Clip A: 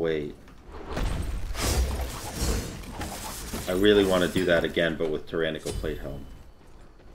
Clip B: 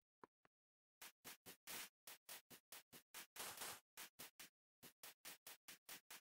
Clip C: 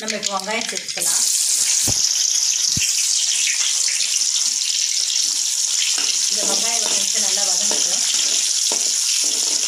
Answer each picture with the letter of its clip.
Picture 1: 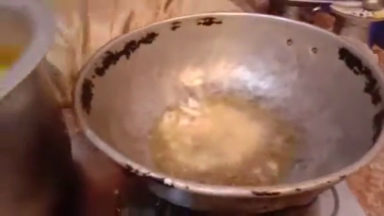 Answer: C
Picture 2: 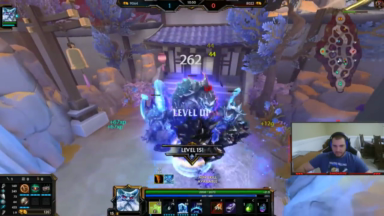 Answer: A